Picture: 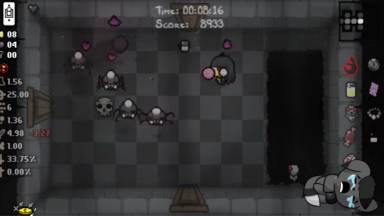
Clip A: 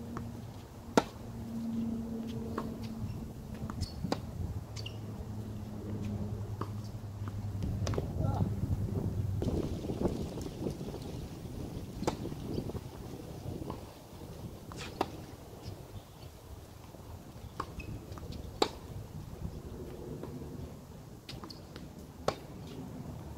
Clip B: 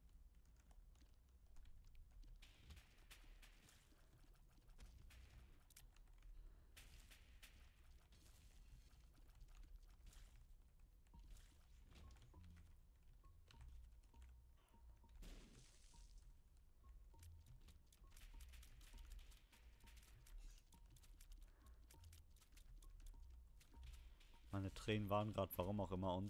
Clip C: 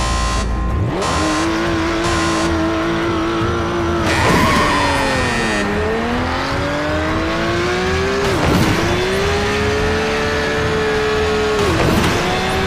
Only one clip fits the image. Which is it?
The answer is B